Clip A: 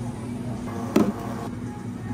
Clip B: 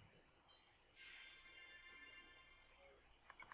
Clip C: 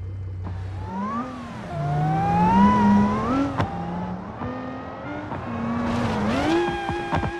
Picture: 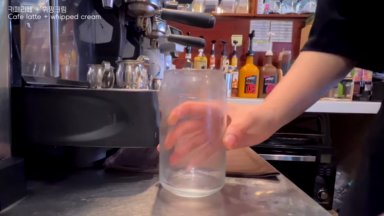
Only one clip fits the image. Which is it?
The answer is A